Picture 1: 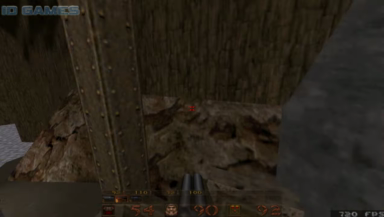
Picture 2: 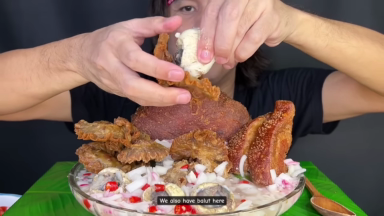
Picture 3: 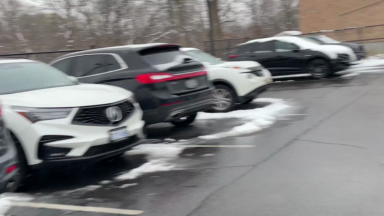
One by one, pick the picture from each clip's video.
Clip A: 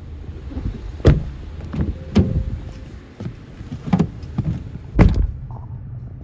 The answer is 3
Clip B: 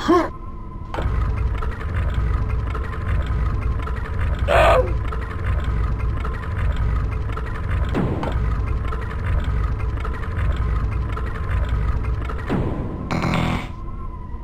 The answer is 1